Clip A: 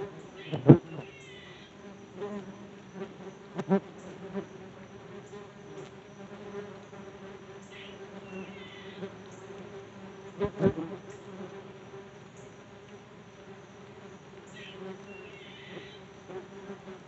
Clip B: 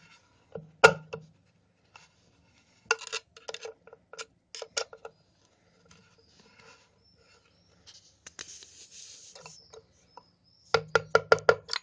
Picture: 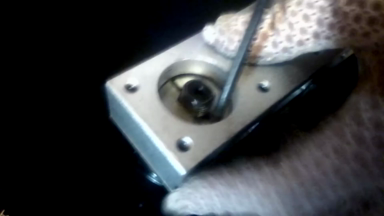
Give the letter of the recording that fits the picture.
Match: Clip B